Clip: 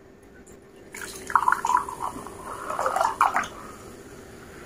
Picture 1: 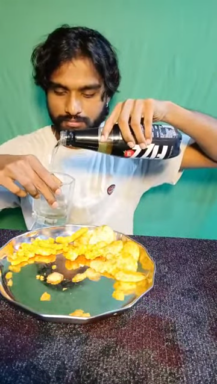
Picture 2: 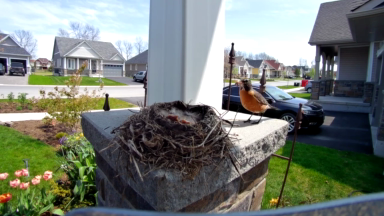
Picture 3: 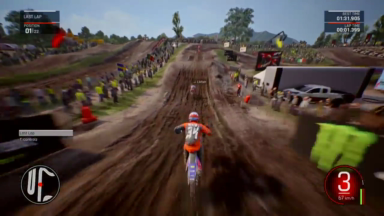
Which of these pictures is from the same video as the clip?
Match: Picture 1